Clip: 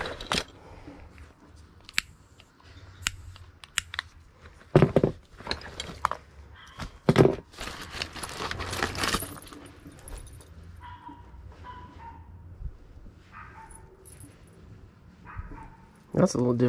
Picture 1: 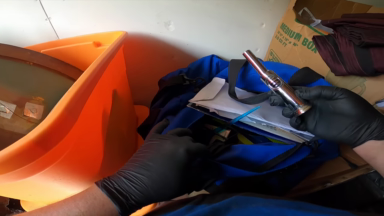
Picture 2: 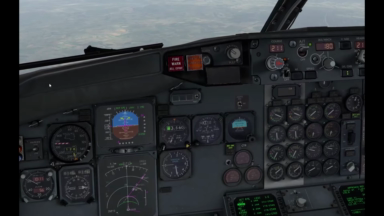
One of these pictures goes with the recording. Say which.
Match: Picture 1